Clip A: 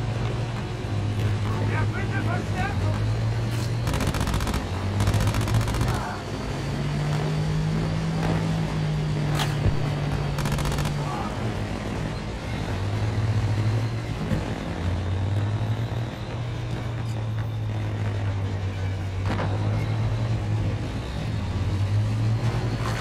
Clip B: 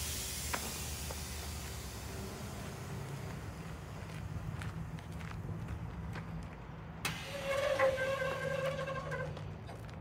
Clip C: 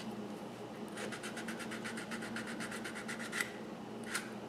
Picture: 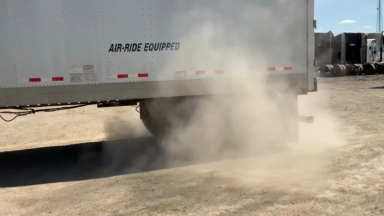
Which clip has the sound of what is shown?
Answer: B